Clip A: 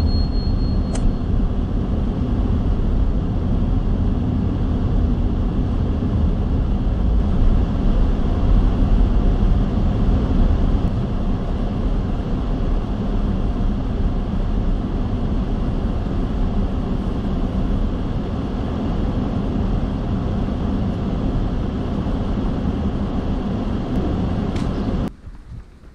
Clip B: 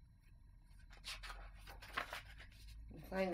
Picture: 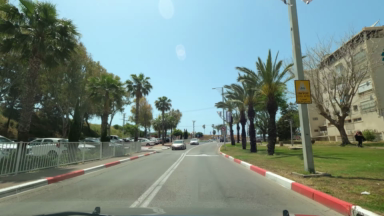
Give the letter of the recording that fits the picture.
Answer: A